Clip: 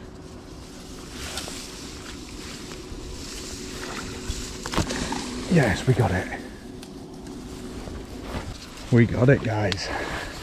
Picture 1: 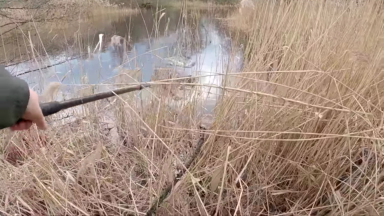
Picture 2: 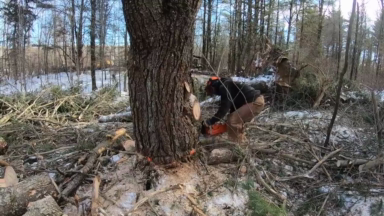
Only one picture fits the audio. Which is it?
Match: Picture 1